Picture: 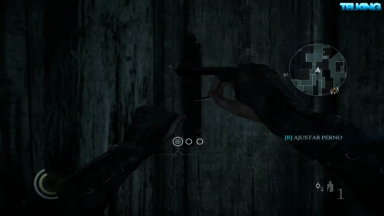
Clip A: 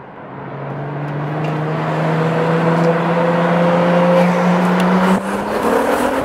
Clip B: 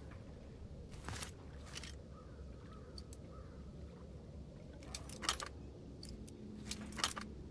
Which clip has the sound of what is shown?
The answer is B